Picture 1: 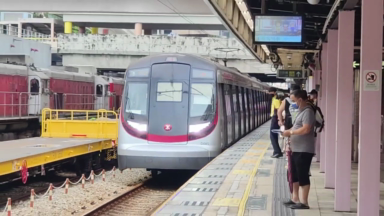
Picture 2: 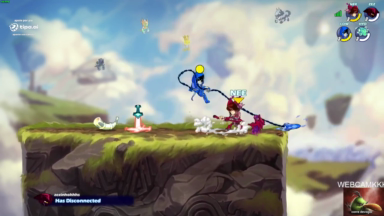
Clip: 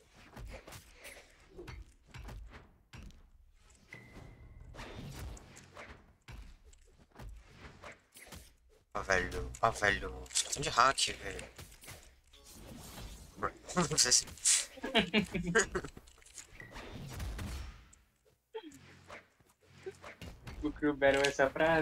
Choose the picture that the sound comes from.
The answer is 2